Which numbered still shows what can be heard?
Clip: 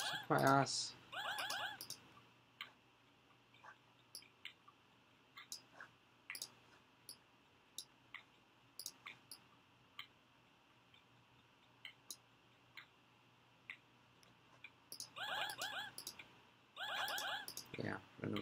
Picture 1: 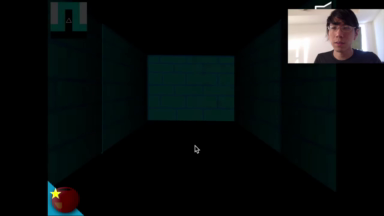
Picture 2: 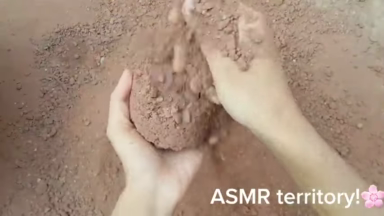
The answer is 1